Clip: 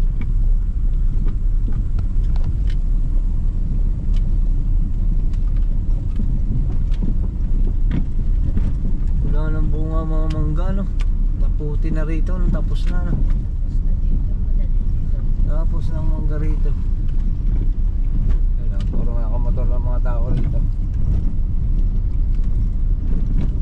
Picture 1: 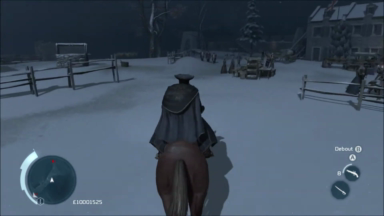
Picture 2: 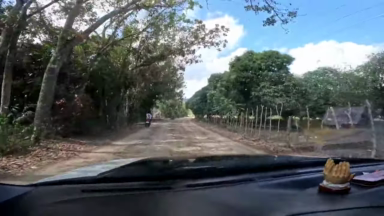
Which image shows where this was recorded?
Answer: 2